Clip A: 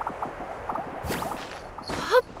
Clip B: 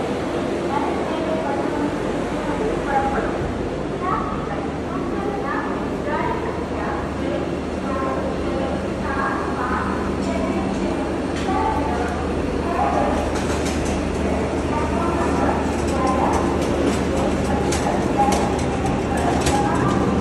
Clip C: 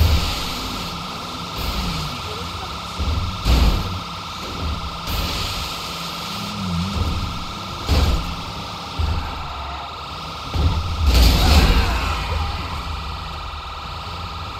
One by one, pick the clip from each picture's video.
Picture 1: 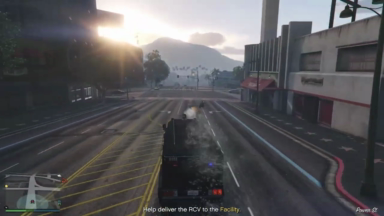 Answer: C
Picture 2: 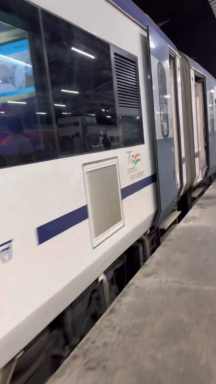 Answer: B